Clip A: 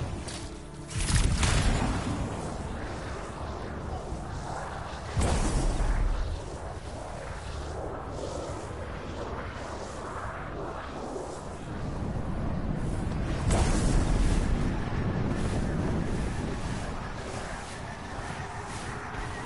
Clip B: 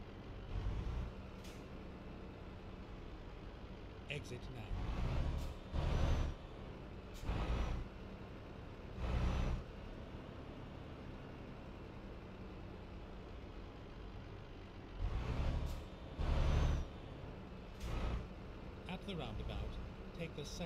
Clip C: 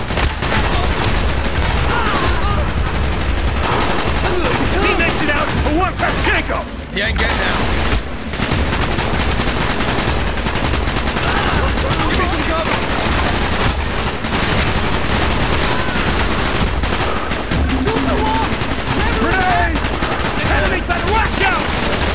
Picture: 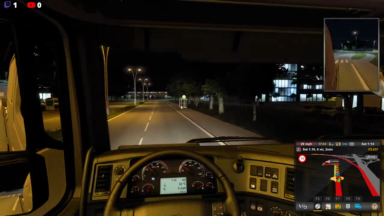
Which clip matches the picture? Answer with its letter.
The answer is B